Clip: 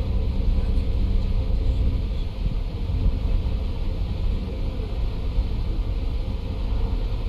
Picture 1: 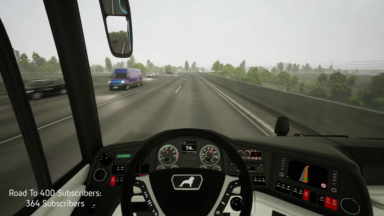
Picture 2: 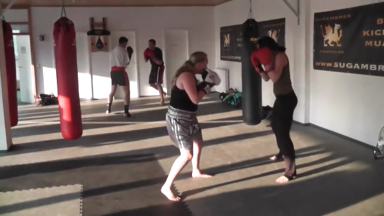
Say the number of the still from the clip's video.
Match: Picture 1